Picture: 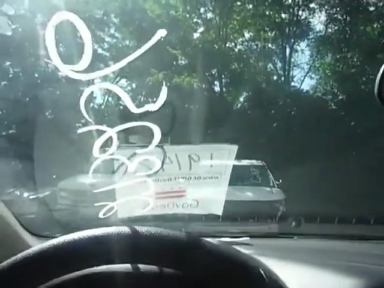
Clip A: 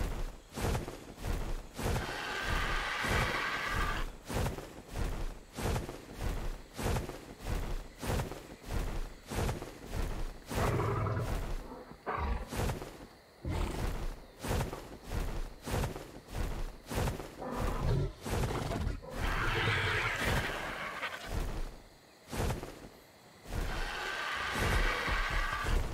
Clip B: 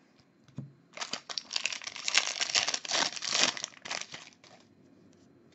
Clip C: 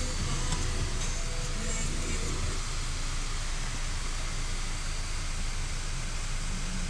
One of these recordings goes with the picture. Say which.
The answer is C